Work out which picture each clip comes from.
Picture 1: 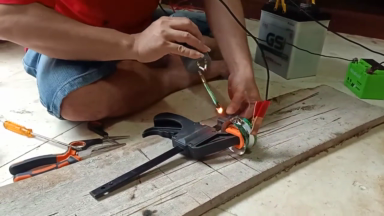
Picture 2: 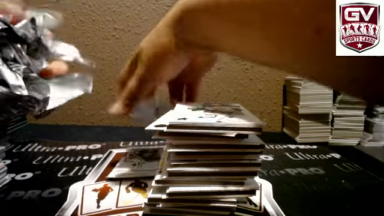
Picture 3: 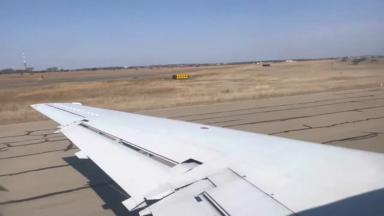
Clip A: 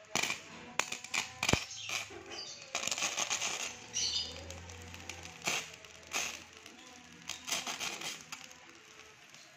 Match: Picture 1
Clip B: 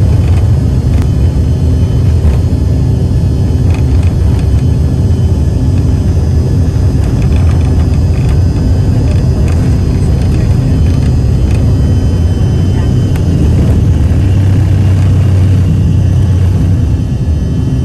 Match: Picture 3